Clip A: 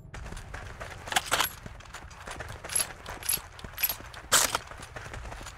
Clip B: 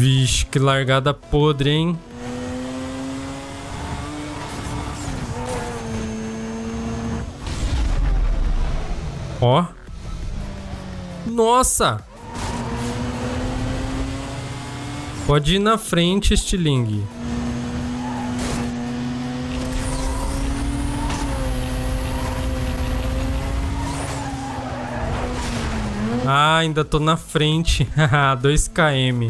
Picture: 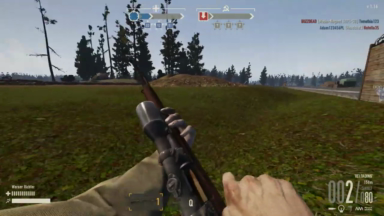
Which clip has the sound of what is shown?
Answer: A